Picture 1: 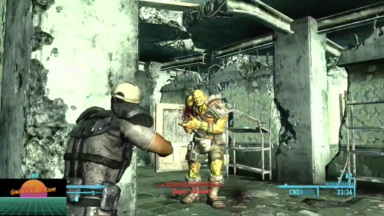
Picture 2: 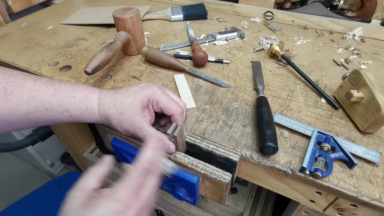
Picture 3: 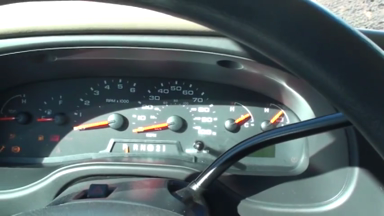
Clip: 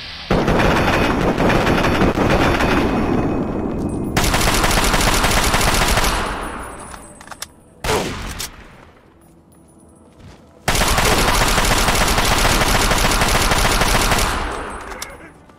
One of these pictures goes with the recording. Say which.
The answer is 1